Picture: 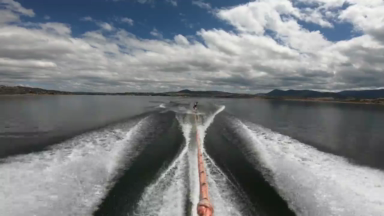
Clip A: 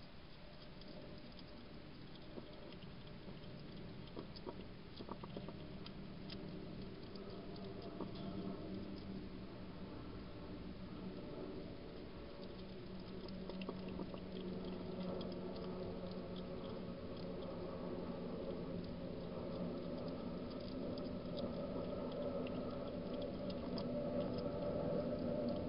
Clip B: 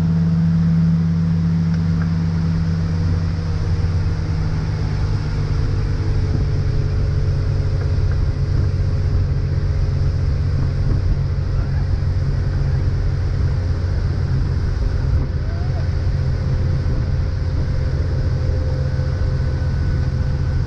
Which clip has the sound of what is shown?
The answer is B